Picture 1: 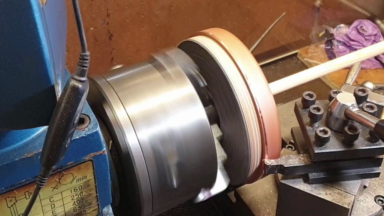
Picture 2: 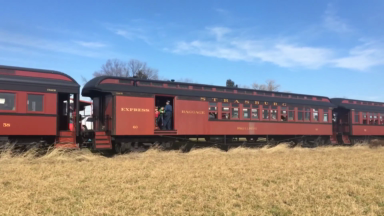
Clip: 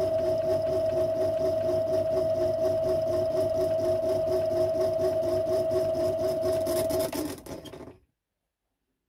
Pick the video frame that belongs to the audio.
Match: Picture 1